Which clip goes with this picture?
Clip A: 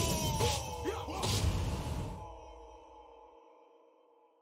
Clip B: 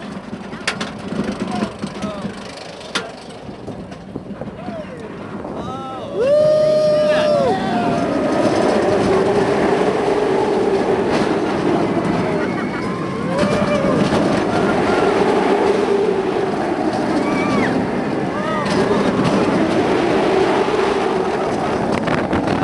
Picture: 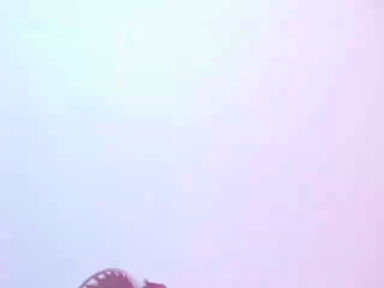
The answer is B